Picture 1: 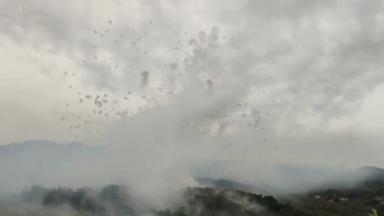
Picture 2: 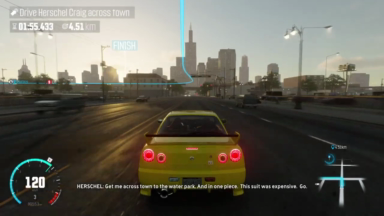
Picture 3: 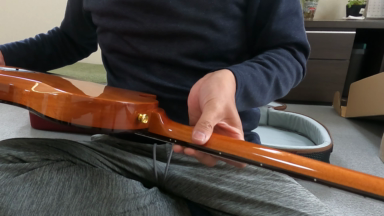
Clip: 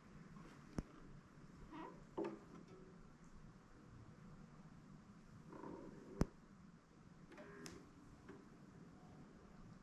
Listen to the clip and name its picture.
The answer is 3